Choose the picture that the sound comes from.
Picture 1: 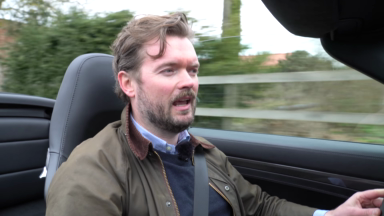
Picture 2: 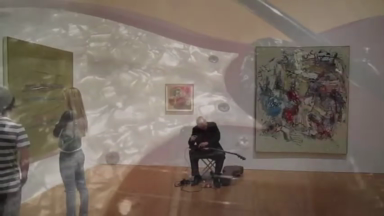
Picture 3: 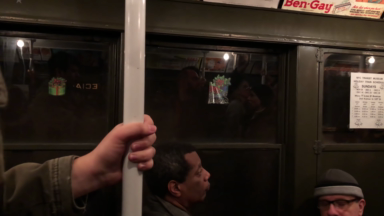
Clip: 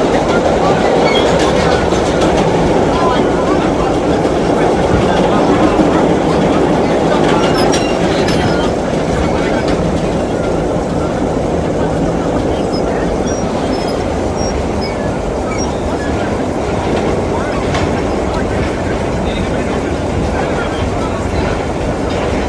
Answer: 3